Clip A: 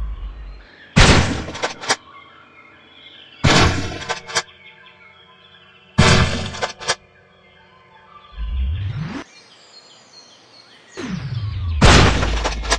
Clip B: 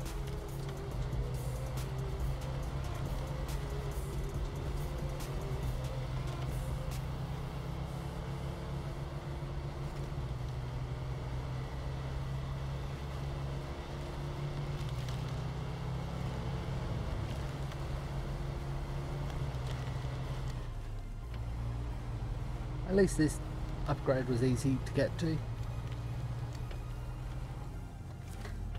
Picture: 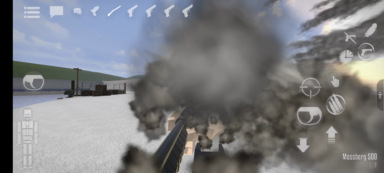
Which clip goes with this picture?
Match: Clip A